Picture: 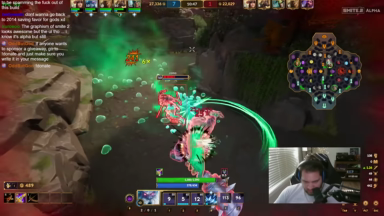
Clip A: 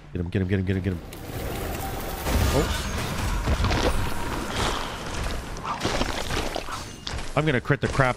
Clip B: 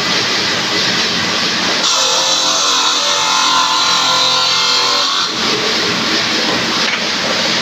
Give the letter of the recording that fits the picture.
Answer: A